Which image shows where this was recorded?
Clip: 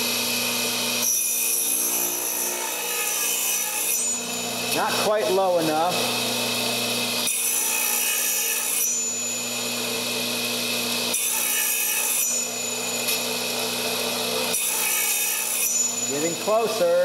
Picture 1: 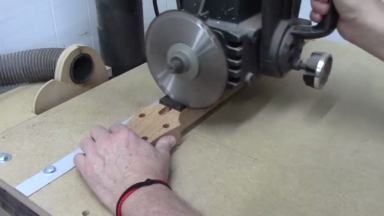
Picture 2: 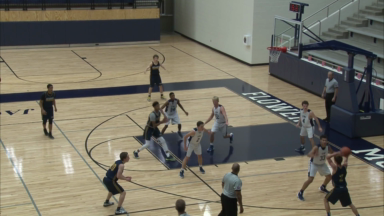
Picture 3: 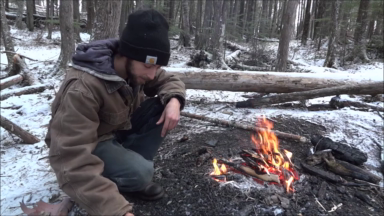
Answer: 1